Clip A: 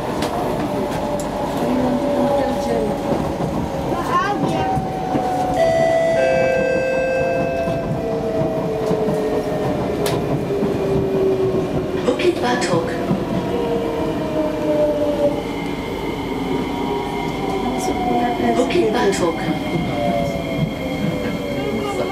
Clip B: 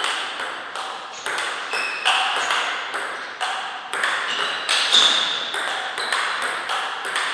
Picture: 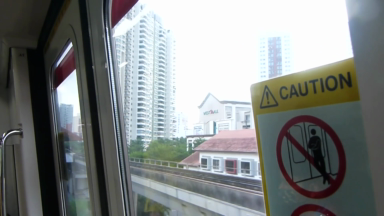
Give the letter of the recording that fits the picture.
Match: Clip A